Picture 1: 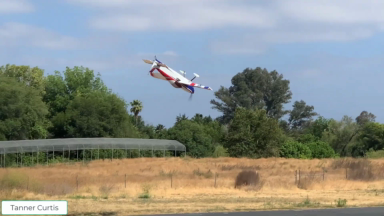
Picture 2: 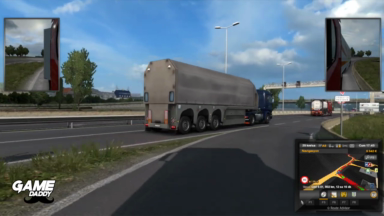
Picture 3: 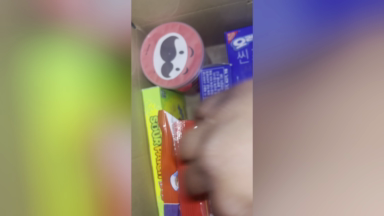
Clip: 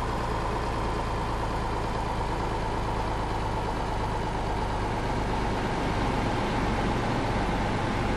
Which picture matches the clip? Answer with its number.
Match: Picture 2